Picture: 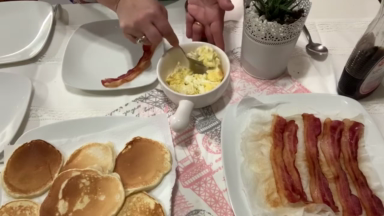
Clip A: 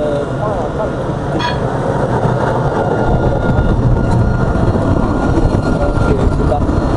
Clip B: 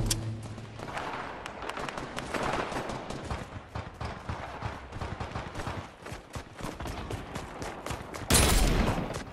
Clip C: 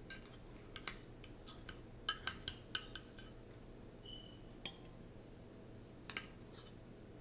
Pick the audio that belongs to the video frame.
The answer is C